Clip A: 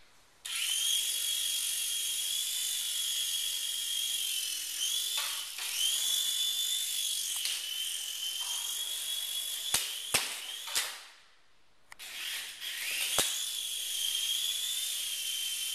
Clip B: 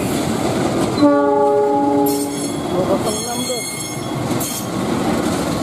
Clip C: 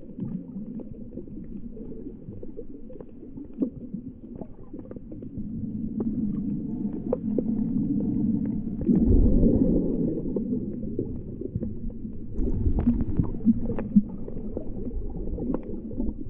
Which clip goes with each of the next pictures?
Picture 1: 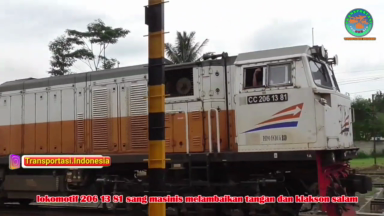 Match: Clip B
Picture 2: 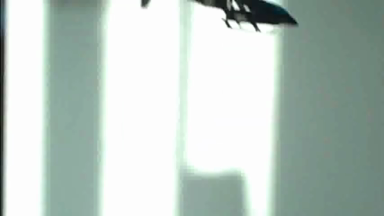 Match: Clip A